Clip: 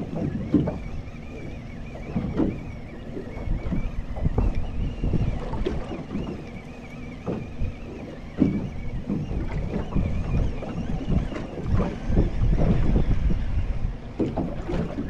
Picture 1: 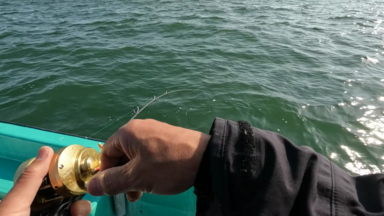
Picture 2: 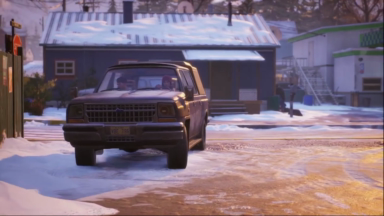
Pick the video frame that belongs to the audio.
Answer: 1